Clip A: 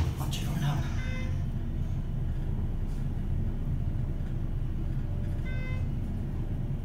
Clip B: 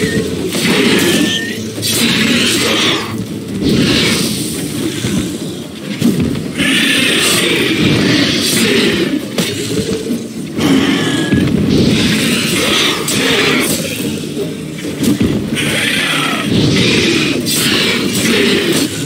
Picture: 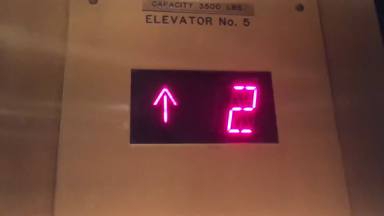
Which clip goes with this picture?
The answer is A